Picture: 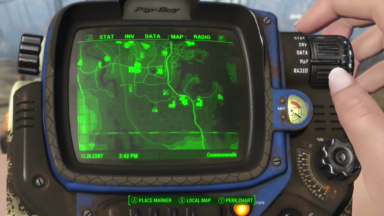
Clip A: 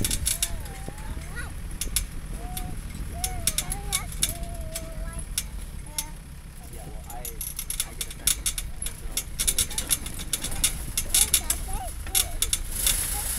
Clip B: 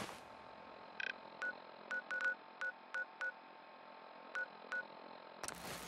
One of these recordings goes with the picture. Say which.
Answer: B